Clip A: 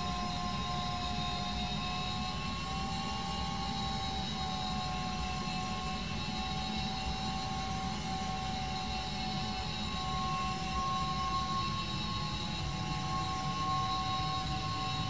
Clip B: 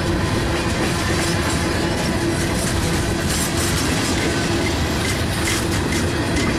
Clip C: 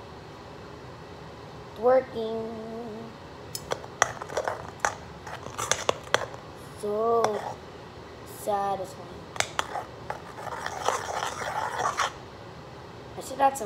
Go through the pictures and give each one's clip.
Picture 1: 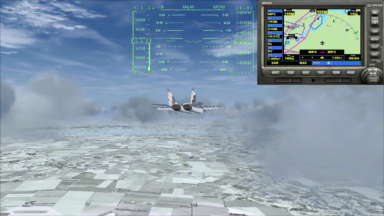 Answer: A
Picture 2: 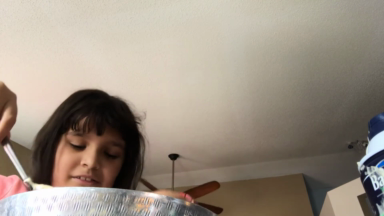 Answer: C